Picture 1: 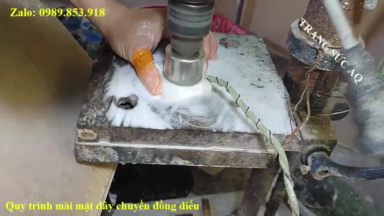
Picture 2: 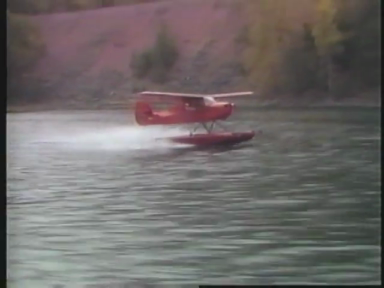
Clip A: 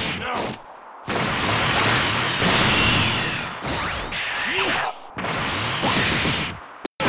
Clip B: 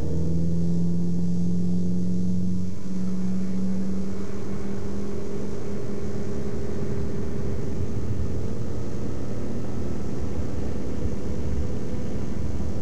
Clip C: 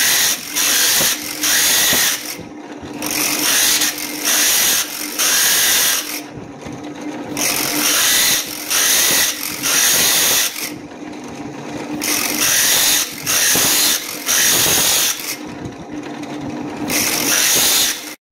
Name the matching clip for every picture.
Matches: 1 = C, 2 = B